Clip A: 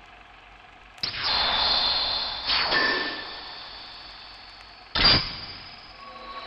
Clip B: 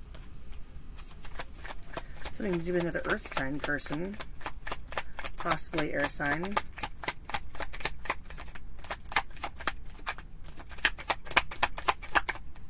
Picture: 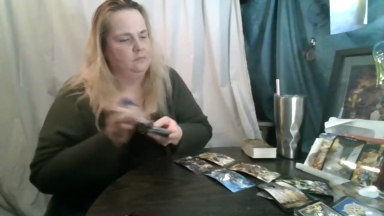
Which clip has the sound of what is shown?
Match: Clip B